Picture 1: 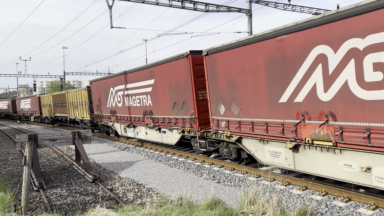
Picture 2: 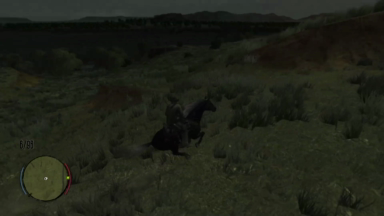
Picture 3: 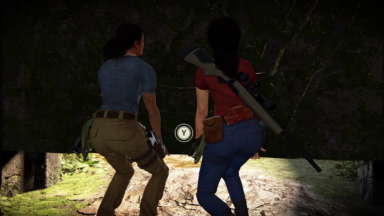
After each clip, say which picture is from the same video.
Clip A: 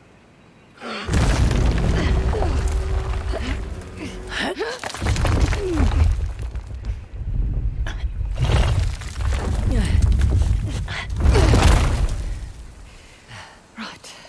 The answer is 3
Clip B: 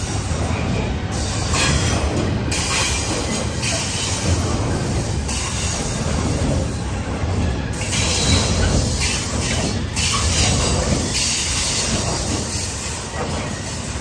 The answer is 1